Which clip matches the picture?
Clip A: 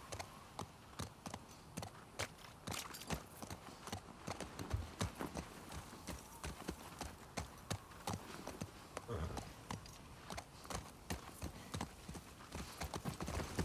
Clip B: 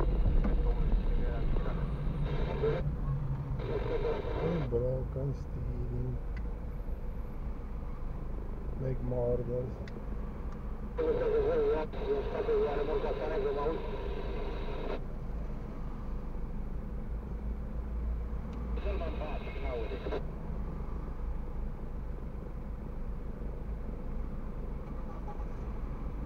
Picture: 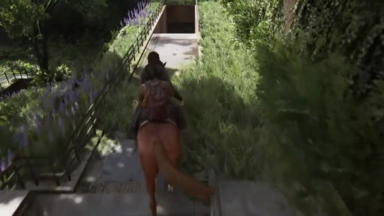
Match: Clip A